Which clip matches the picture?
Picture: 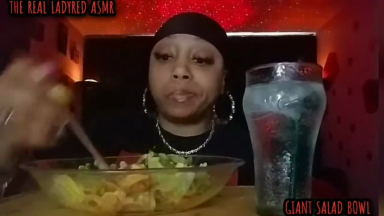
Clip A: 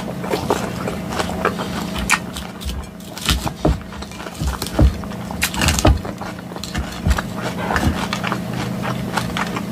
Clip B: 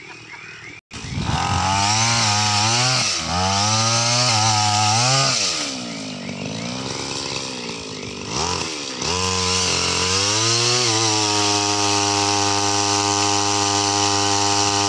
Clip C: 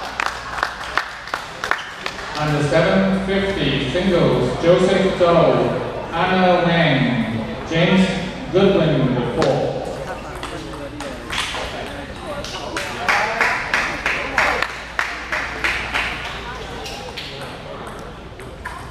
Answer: A